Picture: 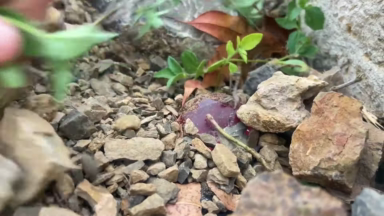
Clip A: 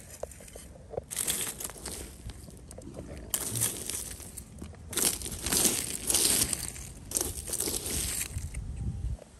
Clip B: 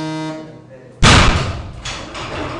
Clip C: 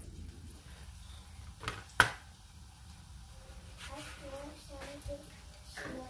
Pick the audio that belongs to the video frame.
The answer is A